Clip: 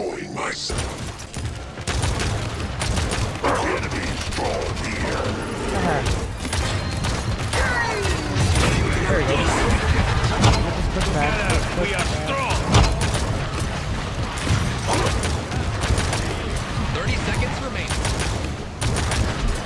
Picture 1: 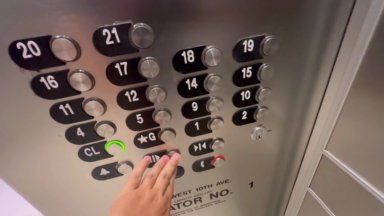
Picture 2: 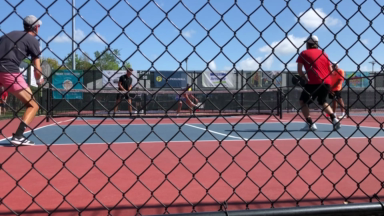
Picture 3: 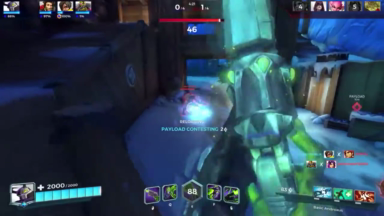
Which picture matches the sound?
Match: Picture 3